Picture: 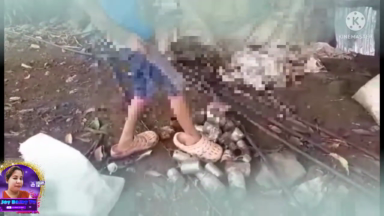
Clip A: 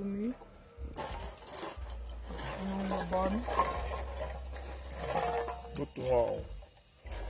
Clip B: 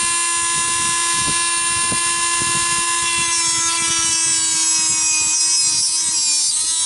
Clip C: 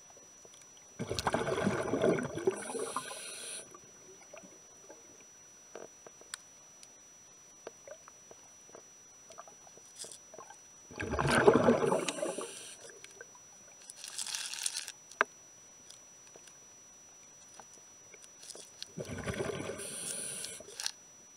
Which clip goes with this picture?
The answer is A